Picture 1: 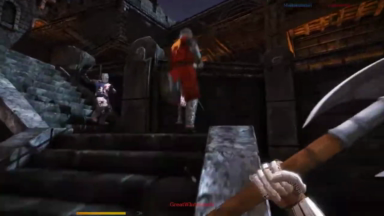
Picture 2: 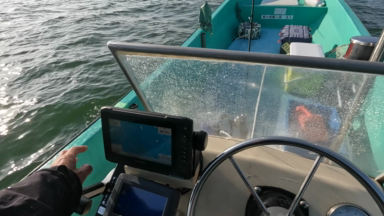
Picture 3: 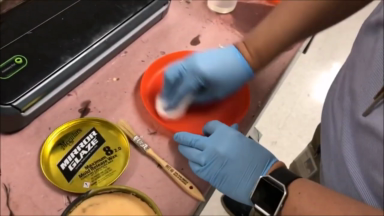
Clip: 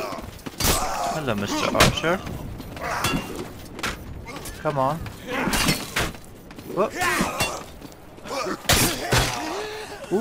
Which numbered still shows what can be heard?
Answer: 1